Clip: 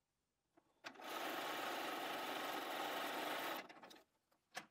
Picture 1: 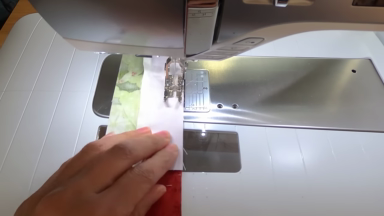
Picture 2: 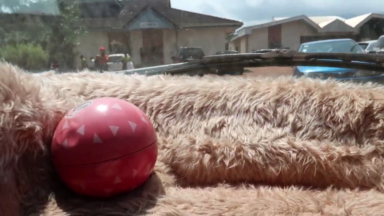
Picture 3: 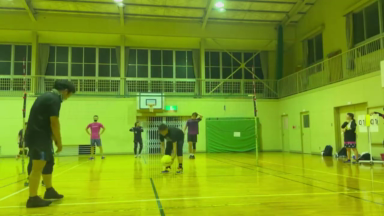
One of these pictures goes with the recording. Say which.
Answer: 1